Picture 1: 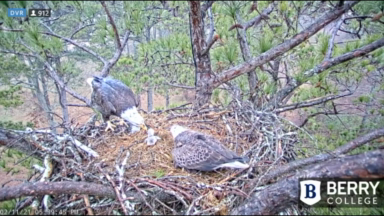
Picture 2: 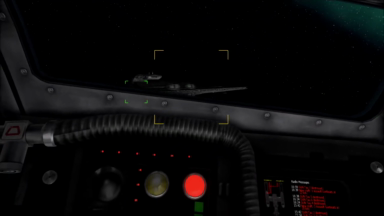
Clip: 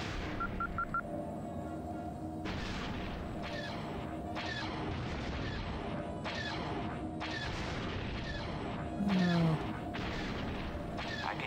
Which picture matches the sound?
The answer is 2